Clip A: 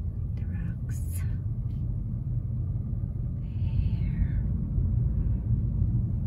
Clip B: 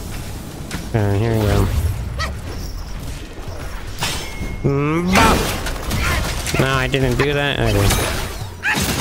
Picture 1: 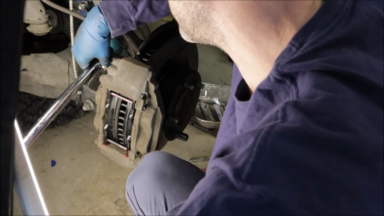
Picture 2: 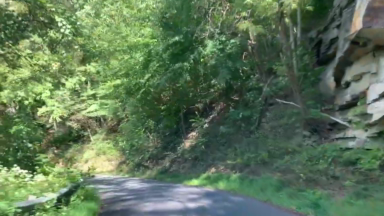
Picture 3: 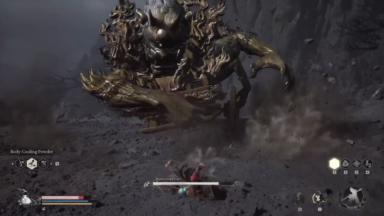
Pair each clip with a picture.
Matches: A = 2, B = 3